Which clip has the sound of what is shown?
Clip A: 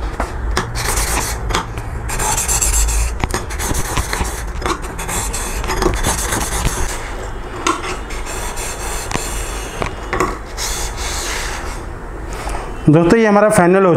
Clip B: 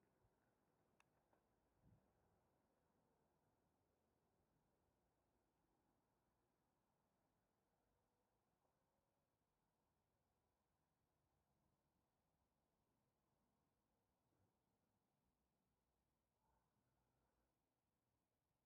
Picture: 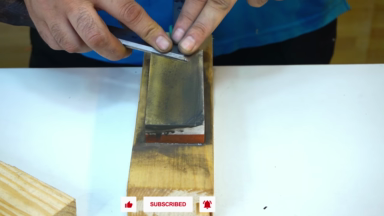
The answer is A